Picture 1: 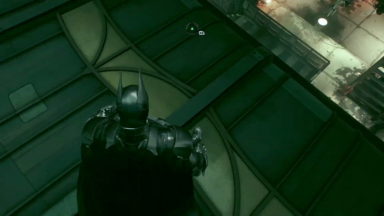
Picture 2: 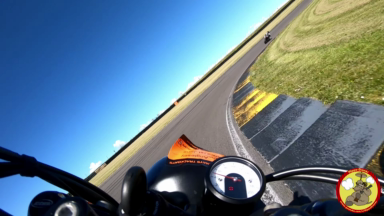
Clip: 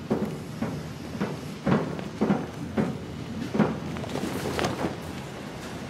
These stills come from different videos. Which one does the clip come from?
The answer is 1